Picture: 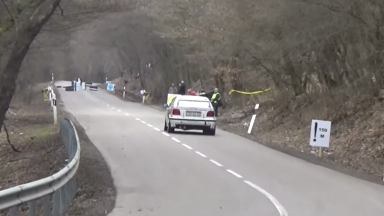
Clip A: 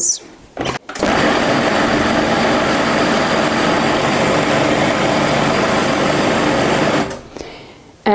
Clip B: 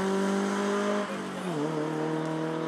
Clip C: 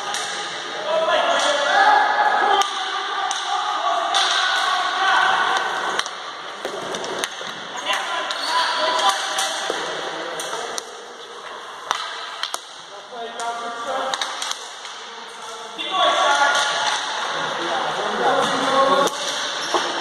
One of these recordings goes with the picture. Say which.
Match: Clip B